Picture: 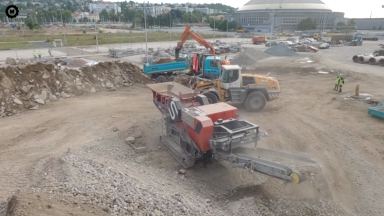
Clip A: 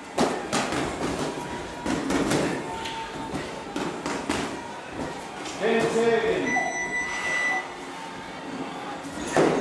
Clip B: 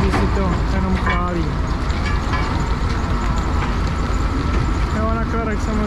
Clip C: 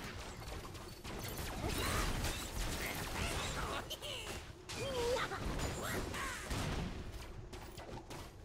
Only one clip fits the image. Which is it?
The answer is B